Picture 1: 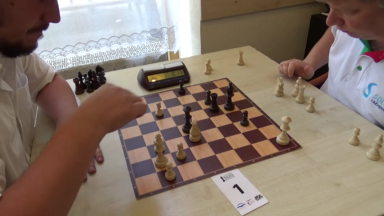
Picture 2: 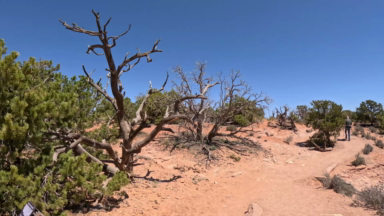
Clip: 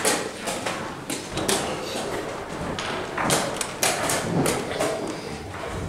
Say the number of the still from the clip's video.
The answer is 1